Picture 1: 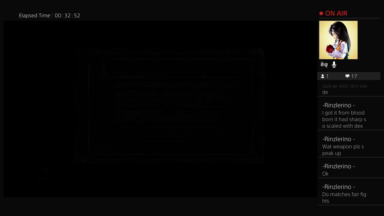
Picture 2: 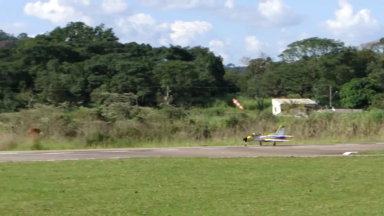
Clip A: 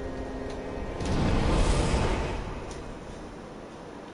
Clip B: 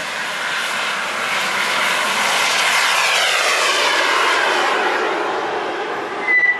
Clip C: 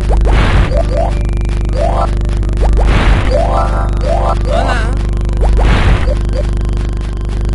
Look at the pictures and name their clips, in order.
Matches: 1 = A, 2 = B